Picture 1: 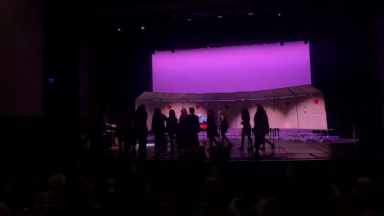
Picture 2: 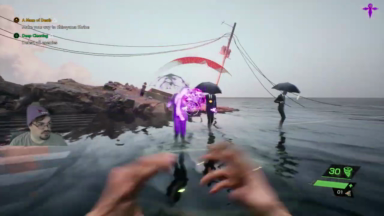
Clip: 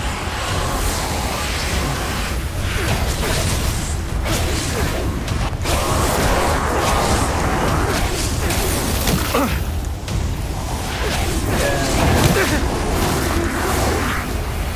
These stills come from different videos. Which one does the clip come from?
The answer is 2